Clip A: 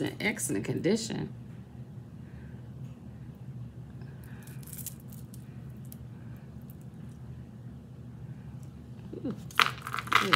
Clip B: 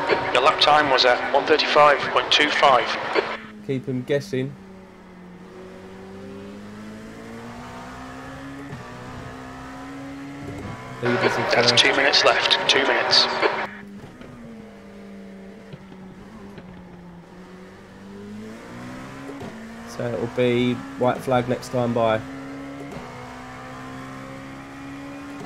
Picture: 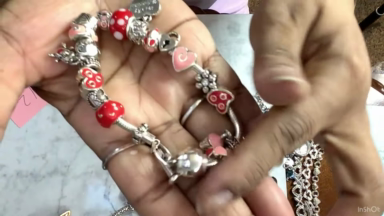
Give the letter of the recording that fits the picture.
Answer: A